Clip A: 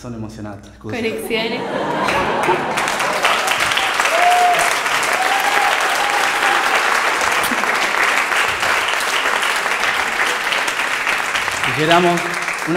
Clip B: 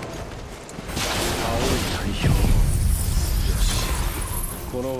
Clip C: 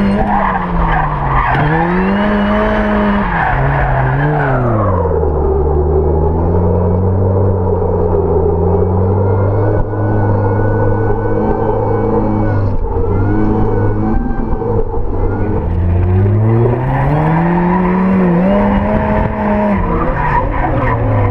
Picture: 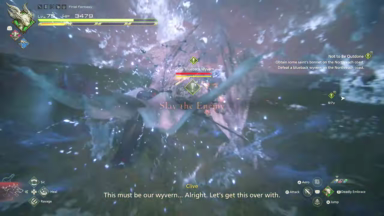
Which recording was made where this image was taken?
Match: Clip B